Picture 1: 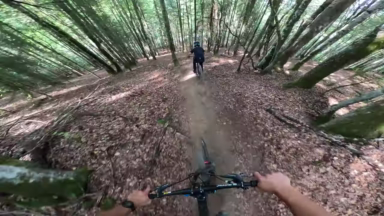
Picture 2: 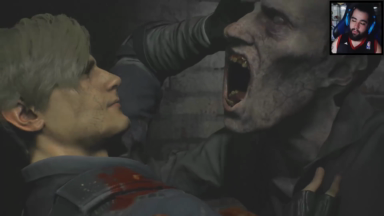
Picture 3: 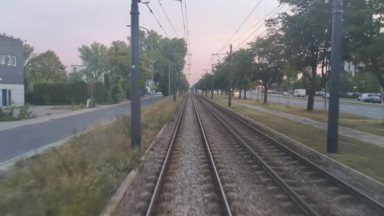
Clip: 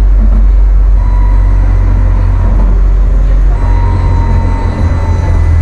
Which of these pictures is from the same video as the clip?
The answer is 3